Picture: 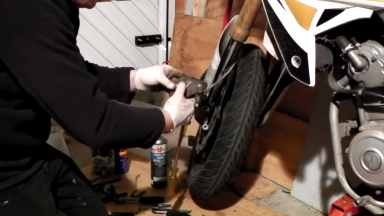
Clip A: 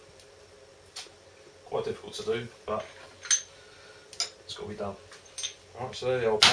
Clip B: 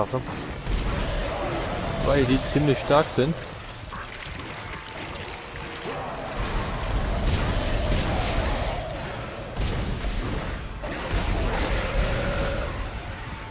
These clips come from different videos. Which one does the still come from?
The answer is A